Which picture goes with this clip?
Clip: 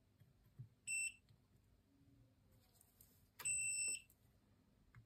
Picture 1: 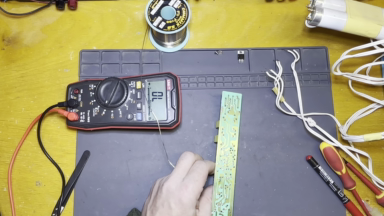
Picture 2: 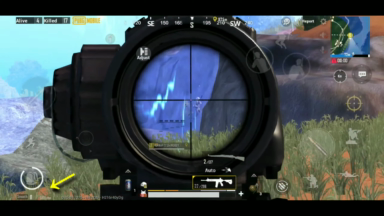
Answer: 1